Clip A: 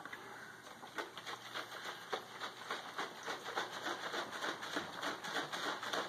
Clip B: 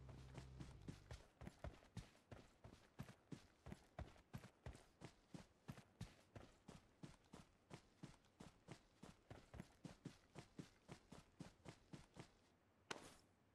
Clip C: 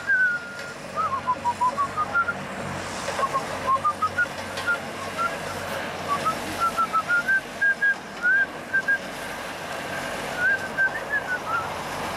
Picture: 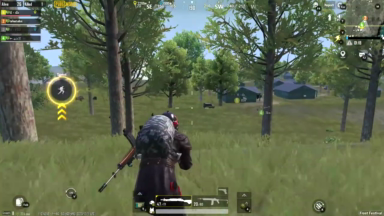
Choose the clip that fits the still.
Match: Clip B